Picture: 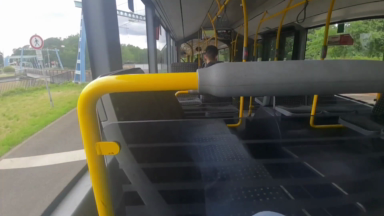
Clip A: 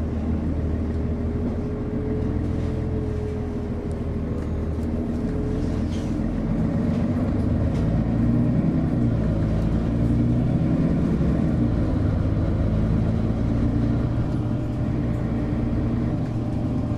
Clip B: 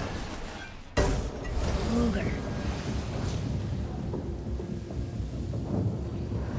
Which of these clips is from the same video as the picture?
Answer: A